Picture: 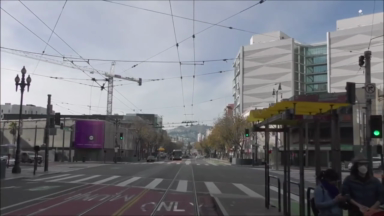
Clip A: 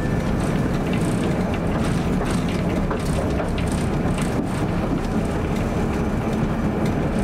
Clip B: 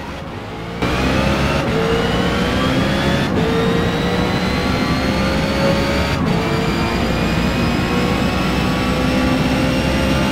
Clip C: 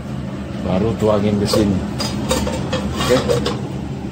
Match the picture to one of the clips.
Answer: A